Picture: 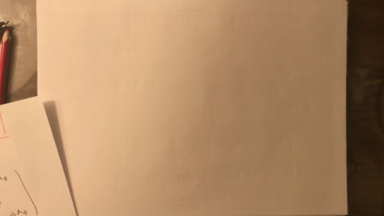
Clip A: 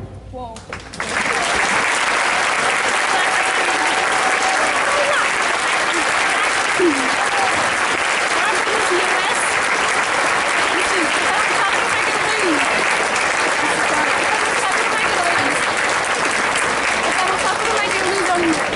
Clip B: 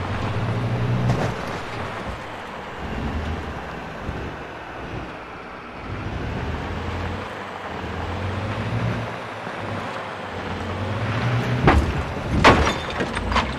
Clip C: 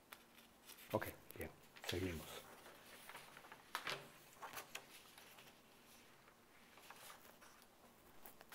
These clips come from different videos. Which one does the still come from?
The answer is C